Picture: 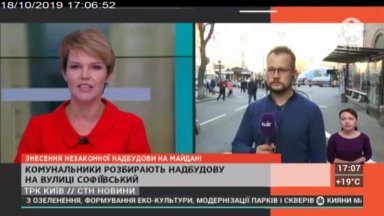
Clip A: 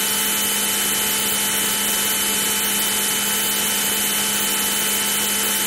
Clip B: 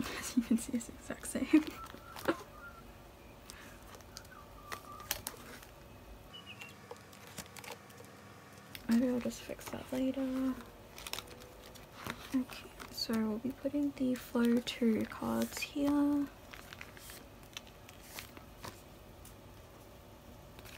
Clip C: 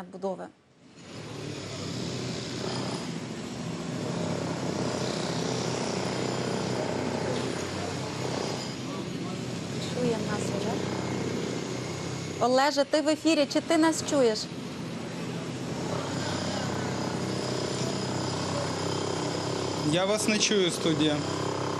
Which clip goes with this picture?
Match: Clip C